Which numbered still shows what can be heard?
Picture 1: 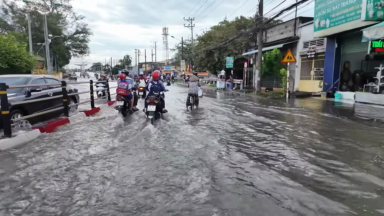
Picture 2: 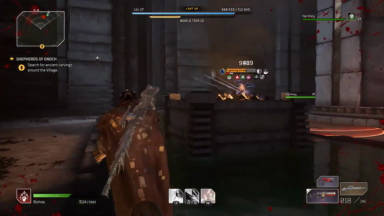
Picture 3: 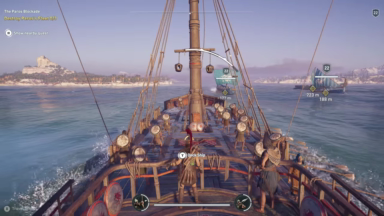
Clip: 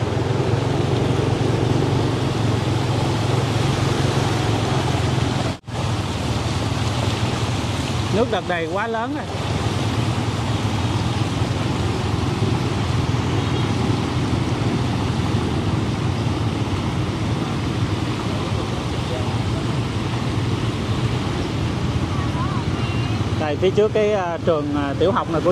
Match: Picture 1